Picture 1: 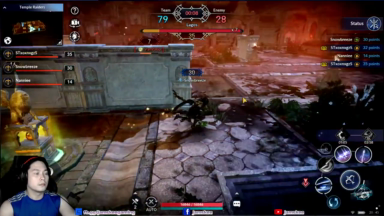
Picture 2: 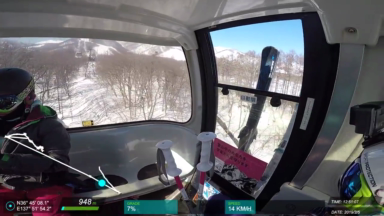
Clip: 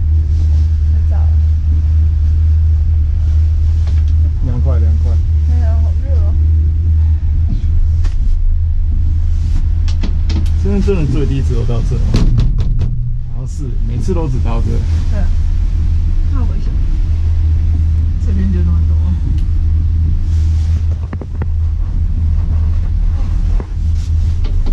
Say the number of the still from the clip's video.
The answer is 2